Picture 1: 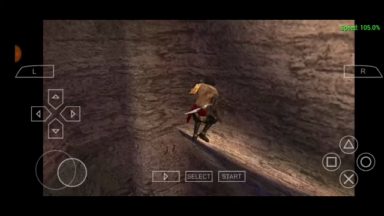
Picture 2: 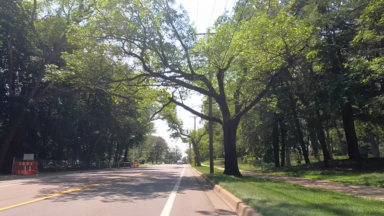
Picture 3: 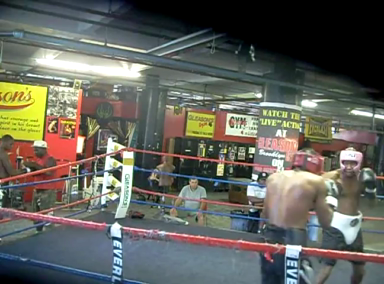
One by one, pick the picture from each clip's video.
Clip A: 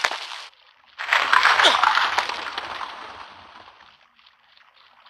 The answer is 1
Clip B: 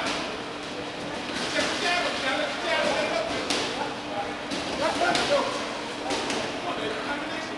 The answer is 3